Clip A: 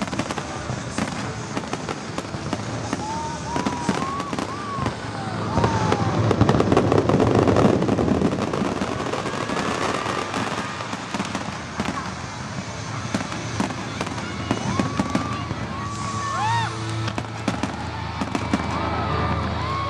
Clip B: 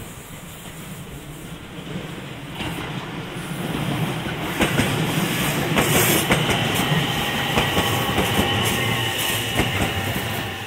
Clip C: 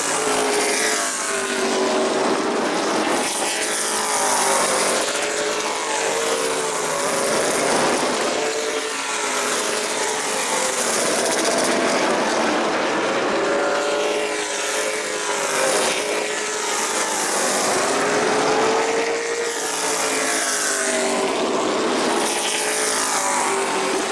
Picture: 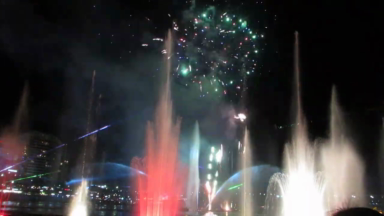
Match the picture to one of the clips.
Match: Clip A